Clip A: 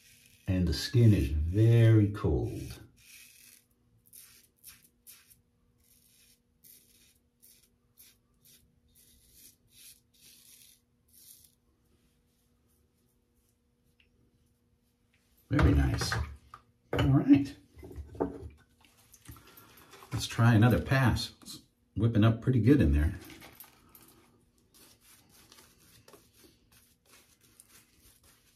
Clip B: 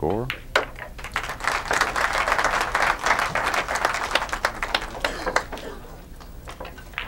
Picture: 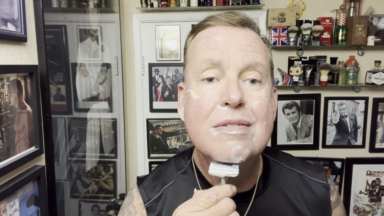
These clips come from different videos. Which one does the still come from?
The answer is A